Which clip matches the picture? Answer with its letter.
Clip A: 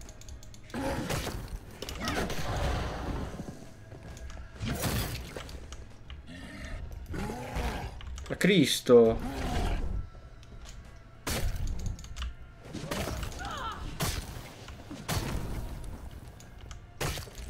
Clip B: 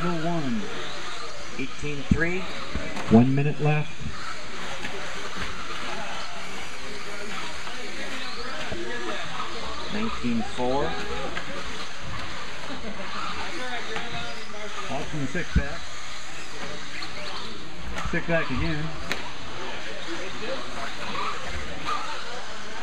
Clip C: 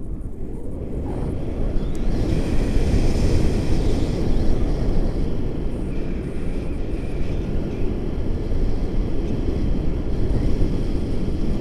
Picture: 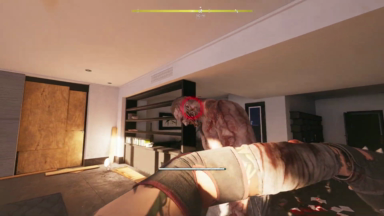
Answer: A